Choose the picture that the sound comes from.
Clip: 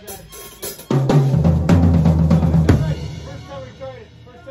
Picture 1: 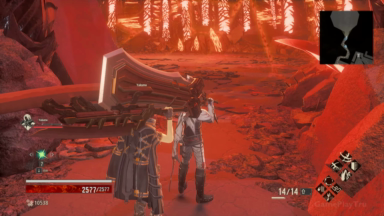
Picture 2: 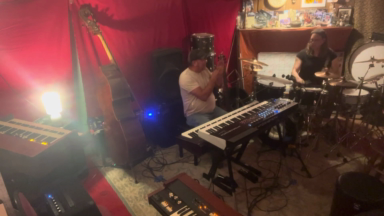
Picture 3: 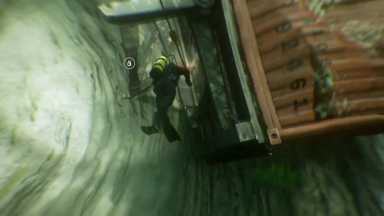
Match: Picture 2